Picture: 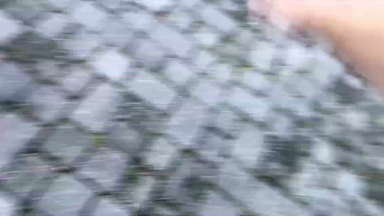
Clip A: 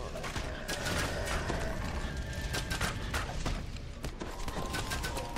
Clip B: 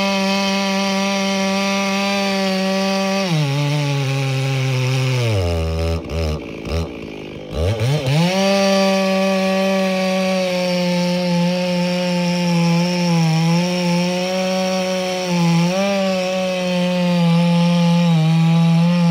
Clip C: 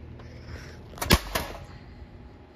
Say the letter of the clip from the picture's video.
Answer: C